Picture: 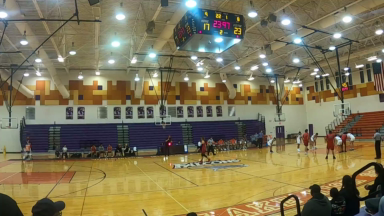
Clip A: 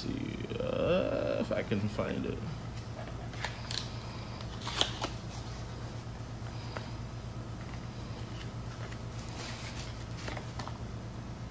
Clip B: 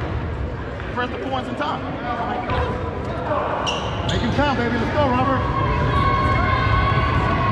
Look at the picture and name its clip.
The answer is B